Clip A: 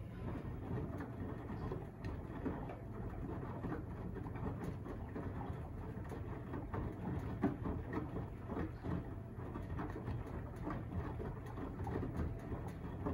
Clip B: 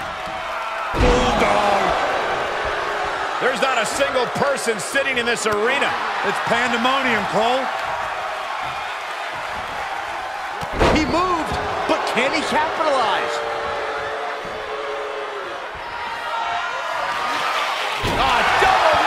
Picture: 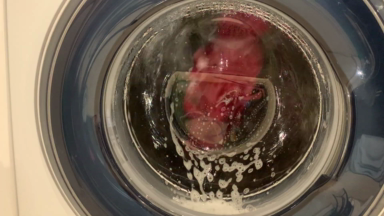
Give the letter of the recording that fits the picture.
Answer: A